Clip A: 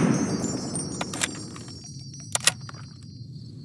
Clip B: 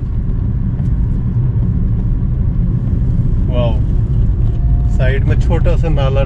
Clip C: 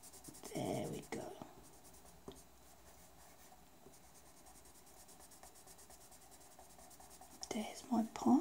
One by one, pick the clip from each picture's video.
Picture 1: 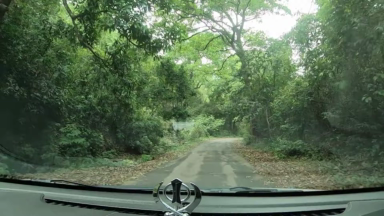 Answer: B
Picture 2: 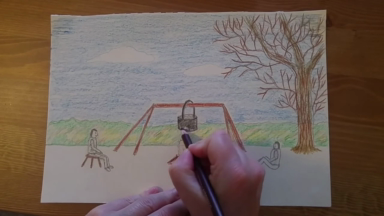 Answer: C